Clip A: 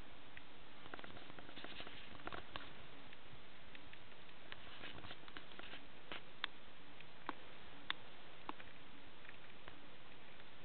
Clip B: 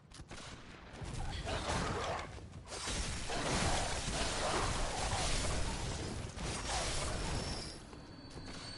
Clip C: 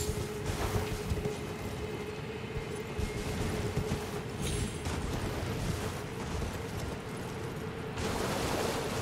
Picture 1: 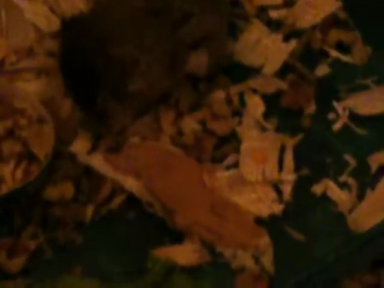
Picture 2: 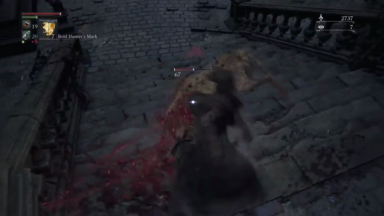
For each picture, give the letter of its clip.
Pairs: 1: A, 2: B